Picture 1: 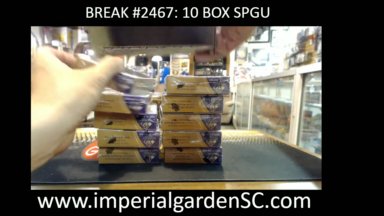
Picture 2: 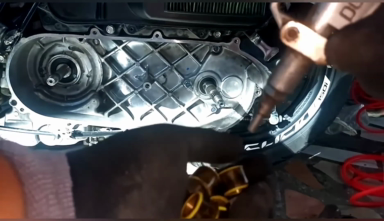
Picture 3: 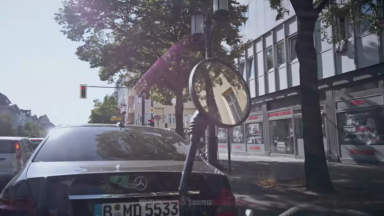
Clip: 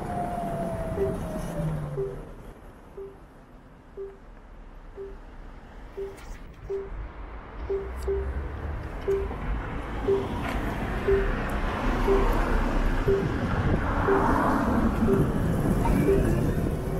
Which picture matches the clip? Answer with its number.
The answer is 3